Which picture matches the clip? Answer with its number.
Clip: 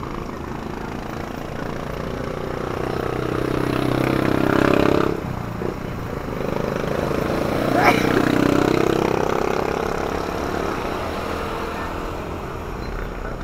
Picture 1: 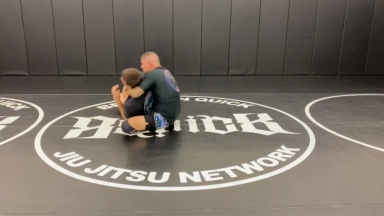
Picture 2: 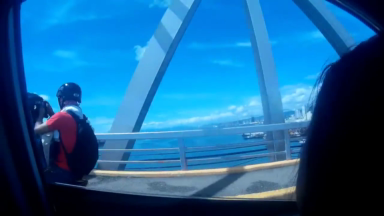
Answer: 2